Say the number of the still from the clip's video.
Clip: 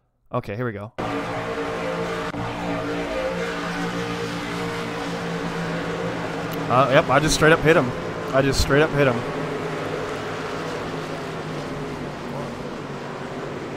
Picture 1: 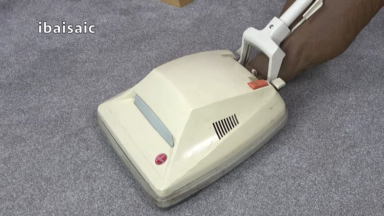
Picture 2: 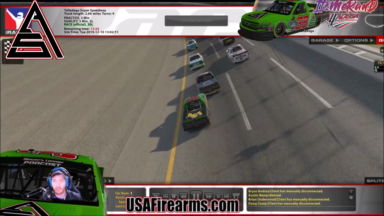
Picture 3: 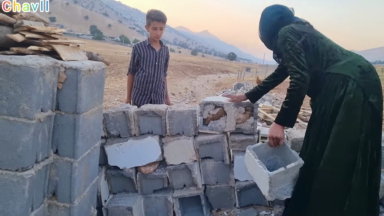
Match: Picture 2